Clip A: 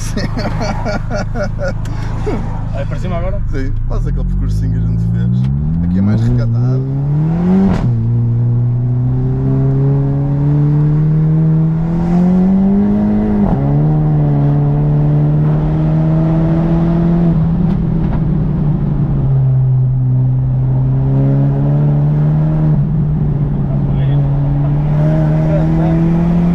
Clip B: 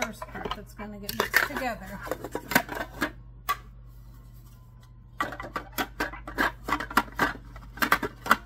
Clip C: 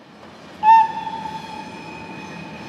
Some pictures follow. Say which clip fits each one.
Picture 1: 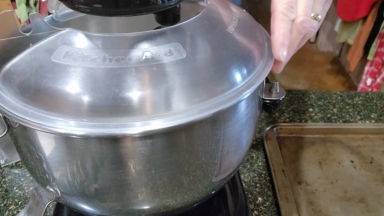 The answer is B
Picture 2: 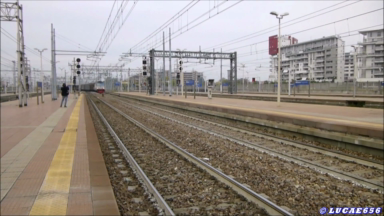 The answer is C